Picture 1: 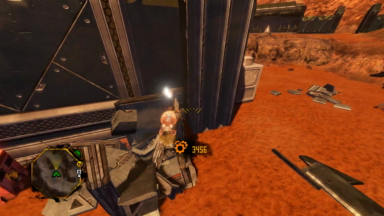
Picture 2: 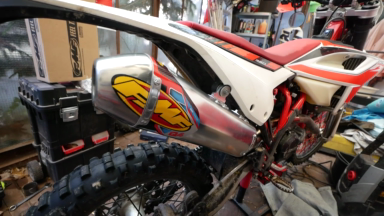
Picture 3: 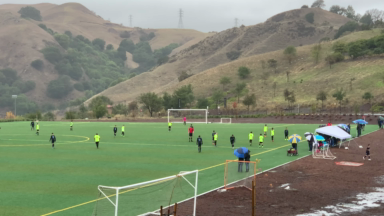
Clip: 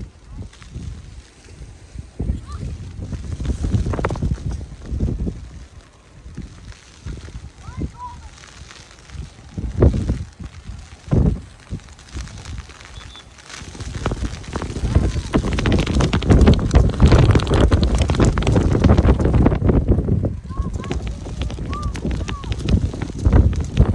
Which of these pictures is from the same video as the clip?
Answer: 3